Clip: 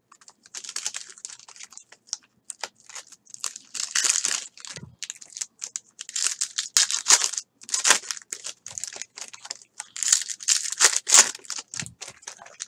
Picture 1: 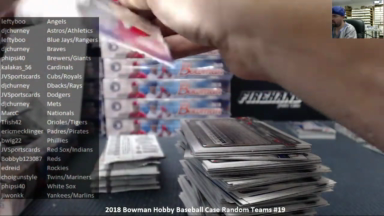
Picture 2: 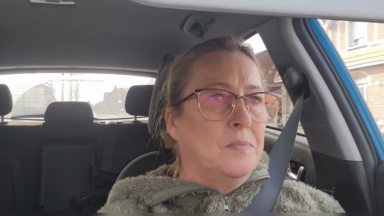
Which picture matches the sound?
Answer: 1